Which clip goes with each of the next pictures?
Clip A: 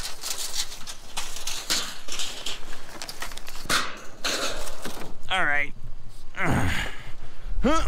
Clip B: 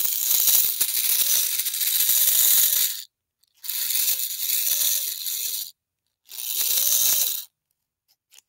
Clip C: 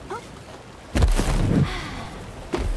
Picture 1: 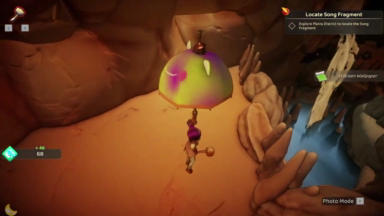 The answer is C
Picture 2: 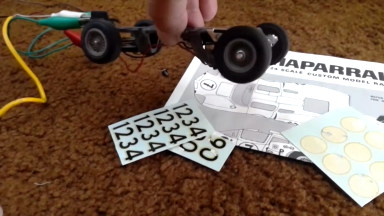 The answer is B